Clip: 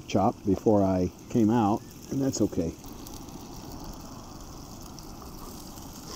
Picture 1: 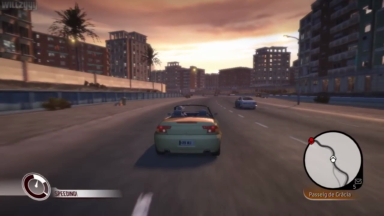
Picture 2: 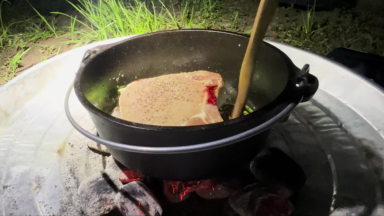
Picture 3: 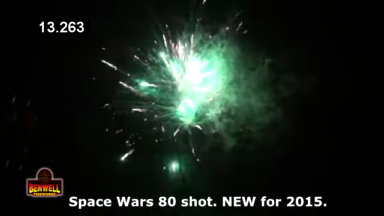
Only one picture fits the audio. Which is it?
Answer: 2